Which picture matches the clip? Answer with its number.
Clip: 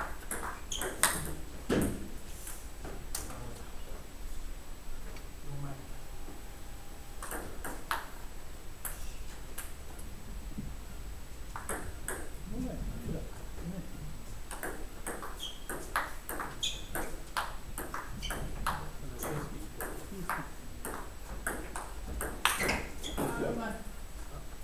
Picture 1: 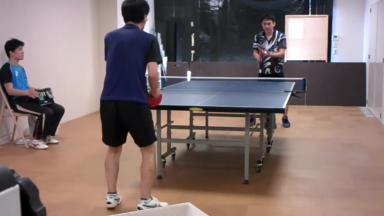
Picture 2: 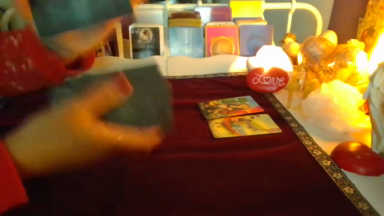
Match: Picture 1